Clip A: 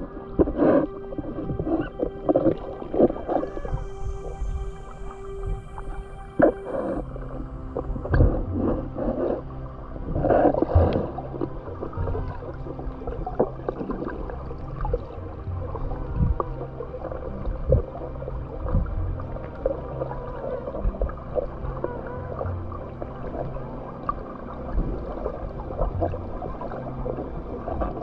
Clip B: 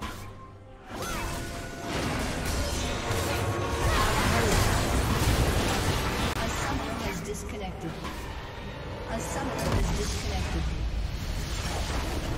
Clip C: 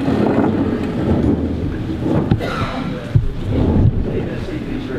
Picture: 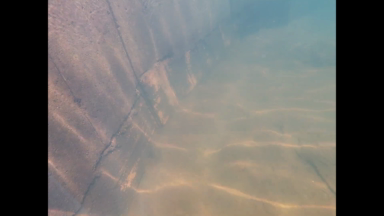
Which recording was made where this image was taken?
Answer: A